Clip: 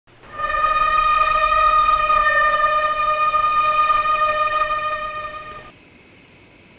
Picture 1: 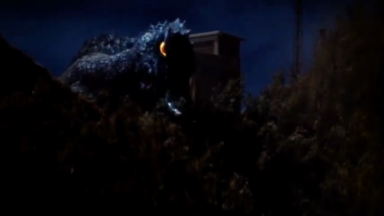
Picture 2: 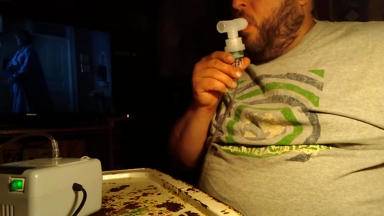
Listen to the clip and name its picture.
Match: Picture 1